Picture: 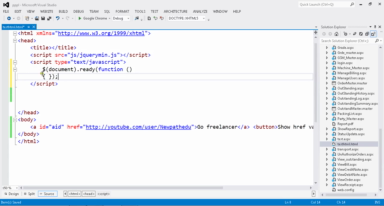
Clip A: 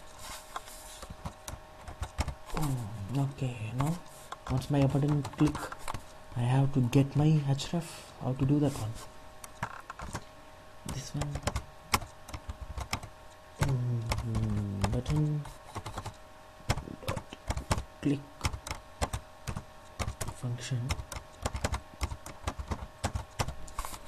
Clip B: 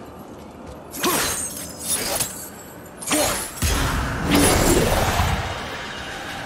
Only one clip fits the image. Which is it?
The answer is A